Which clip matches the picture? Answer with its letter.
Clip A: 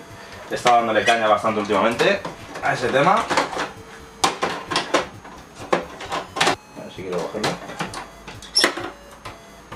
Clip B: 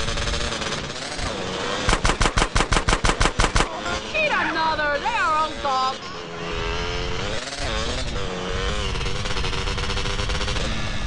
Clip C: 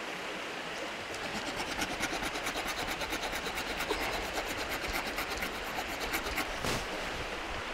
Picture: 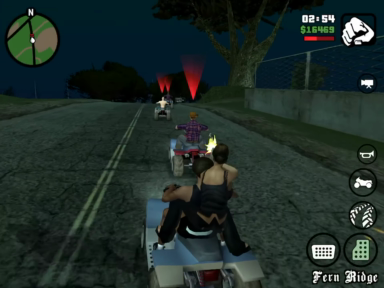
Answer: B